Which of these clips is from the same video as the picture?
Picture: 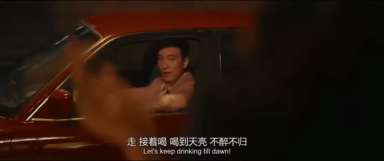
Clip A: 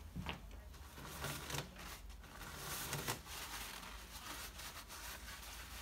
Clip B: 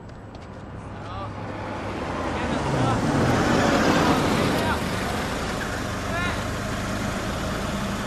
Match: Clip B